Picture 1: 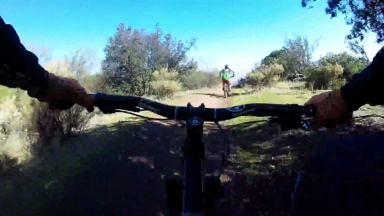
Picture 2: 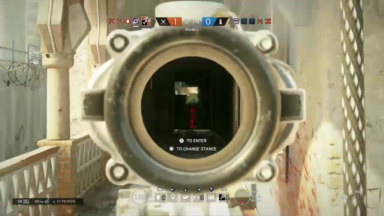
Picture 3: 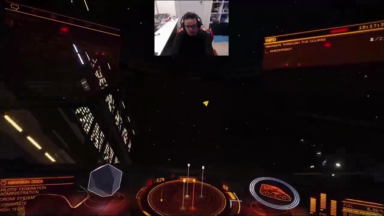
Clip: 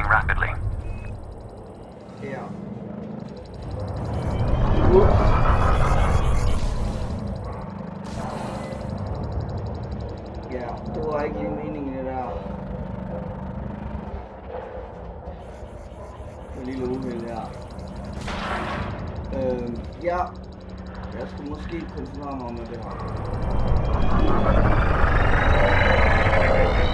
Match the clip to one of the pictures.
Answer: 3